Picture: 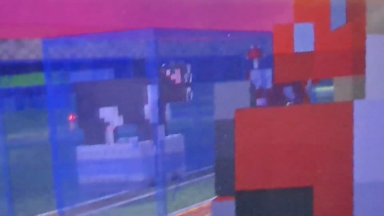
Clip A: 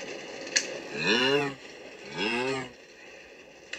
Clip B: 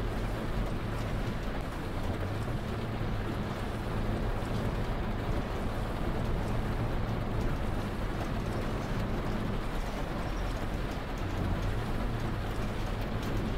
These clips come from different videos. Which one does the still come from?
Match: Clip A